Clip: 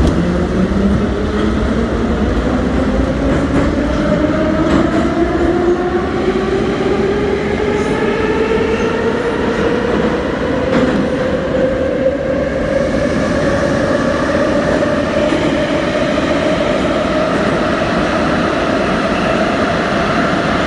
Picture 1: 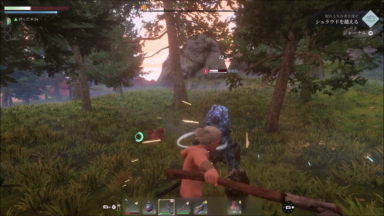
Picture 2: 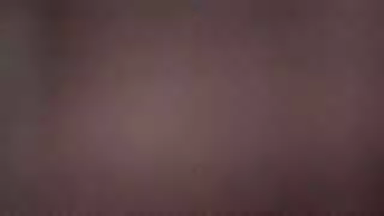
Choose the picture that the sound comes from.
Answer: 2